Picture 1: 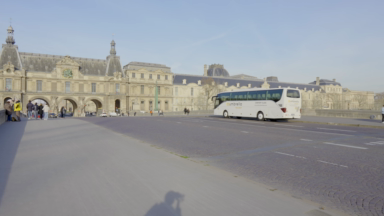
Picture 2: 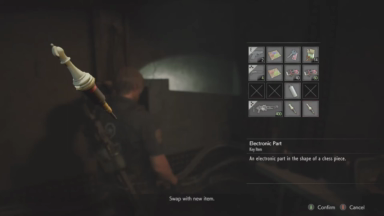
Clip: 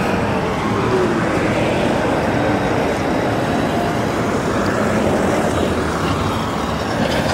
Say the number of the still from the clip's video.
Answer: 1